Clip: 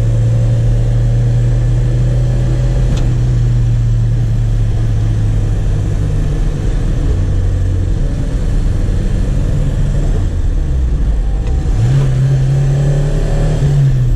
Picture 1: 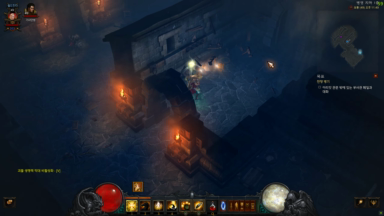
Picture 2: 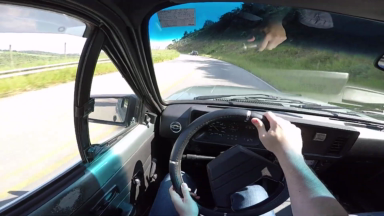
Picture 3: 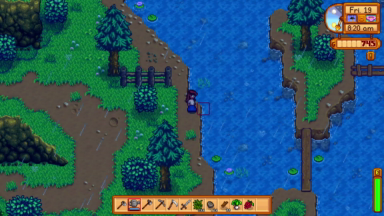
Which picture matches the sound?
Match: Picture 2